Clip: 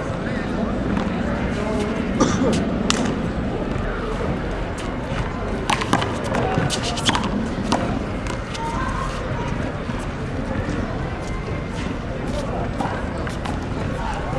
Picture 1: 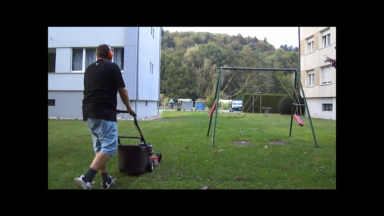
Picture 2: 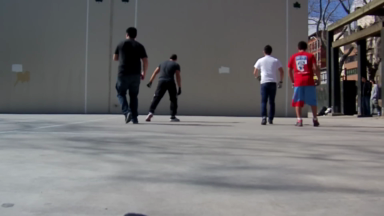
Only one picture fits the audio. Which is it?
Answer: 2